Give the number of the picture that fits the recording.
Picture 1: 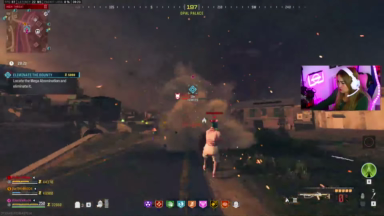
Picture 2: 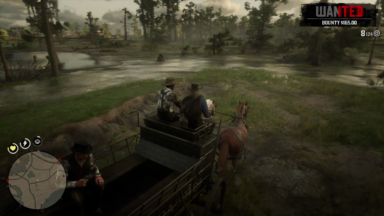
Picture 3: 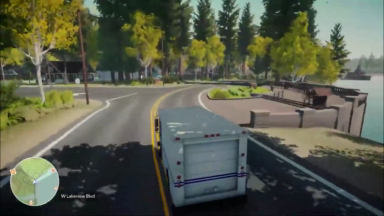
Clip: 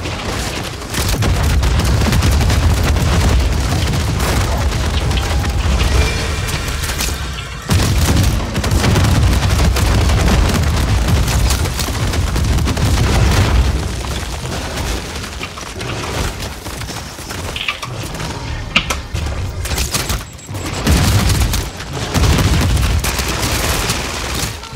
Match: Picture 1